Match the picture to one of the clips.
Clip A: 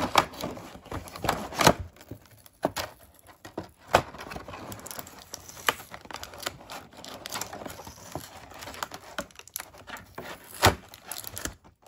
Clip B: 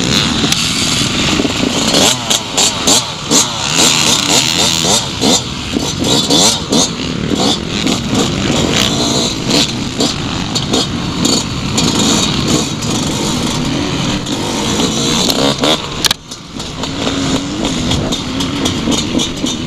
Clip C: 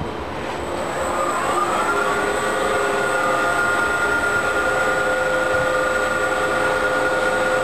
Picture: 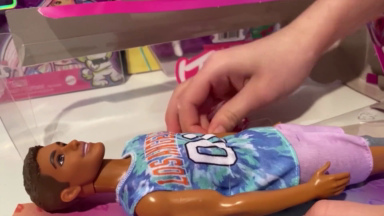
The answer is A